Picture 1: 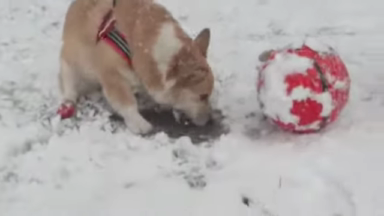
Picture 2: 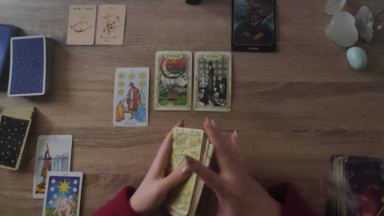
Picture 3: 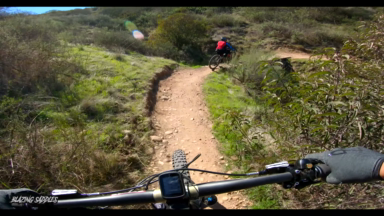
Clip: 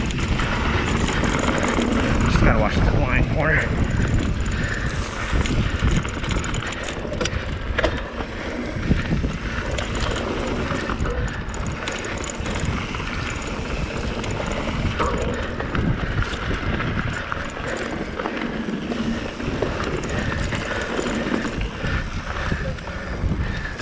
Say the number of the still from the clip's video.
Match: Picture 3